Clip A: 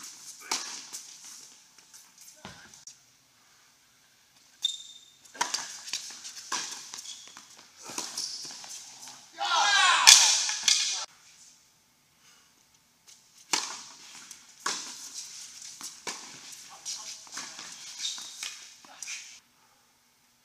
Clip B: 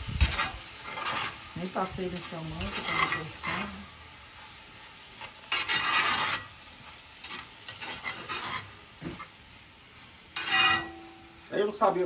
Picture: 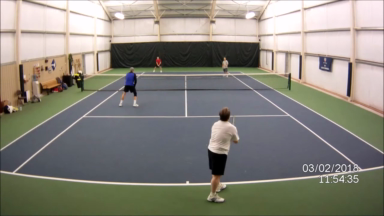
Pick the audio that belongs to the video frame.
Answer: A